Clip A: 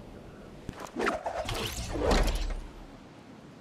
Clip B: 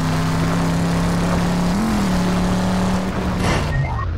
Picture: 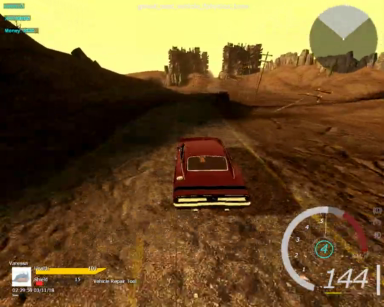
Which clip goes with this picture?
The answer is B